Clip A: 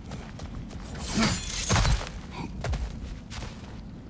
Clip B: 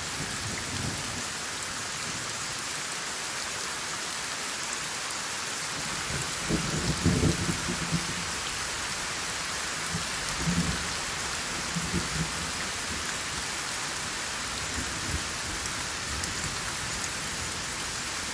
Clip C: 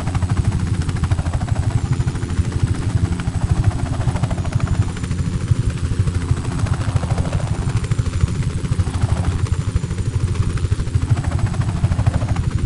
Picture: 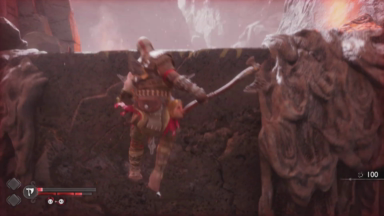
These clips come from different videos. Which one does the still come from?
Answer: A